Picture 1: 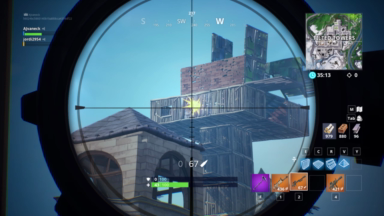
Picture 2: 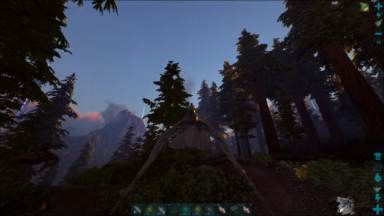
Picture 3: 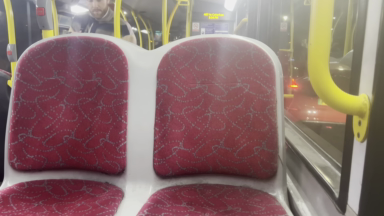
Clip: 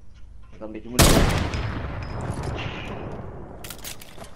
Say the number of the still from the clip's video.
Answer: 1